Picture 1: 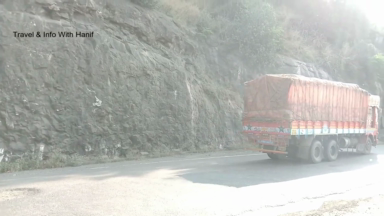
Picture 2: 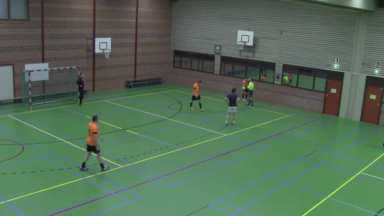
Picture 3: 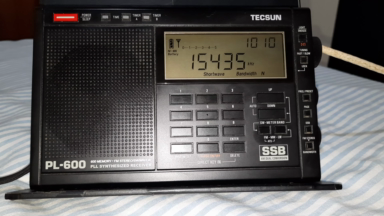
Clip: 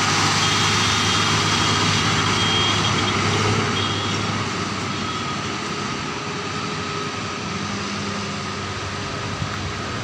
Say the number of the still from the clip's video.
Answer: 1